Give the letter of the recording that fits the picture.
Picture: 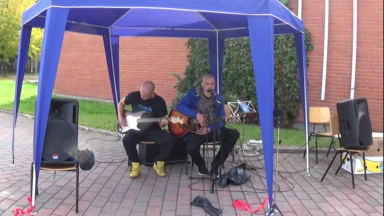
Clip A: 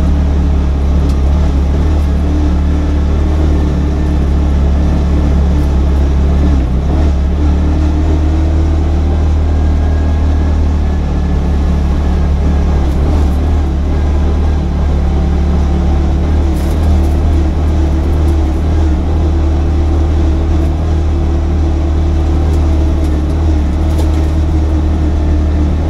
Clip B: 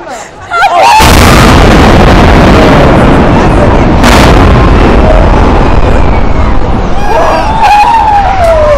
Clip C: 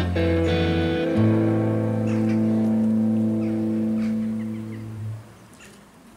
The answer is C